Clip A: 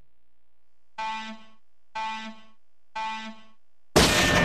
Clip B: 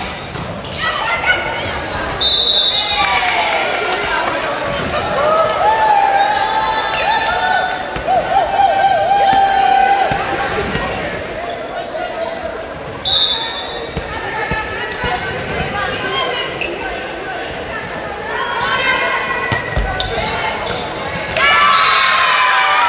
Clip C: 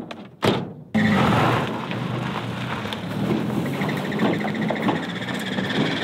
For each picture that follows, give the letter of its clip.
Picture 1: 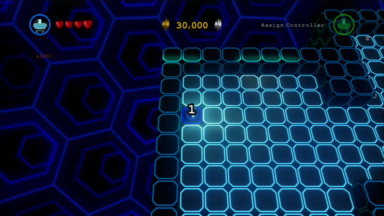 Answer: A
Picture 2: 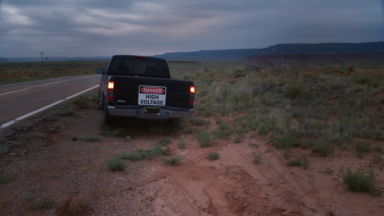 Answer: C